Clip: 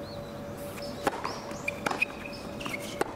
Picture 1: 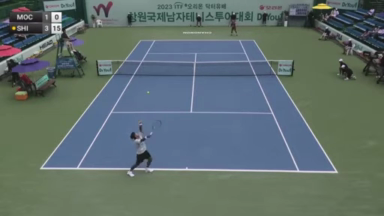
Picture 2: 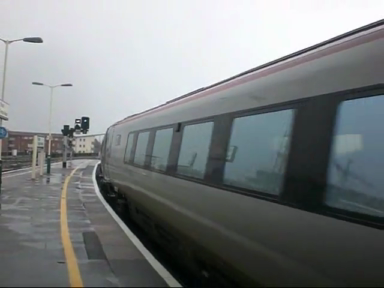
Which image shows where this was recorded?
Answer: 1